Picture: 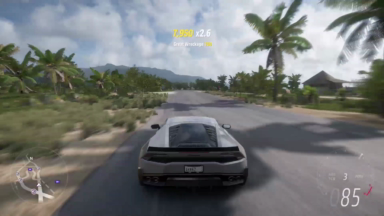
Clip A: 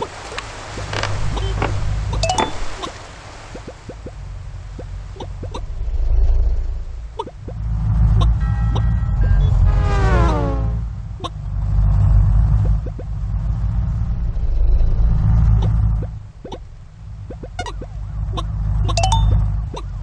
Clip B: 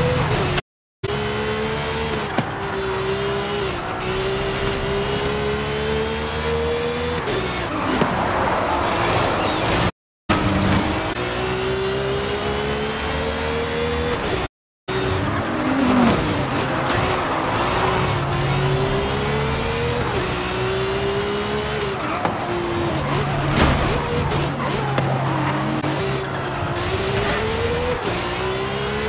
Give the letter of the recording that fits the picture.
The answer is B